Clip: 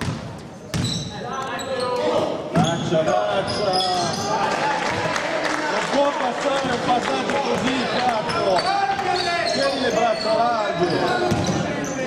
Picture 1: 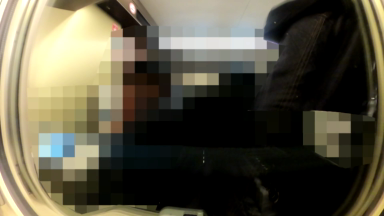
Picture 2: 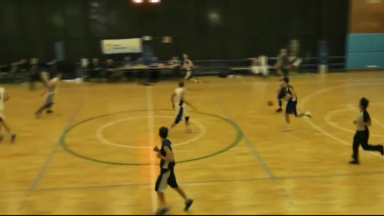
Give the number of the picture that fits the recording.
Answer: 2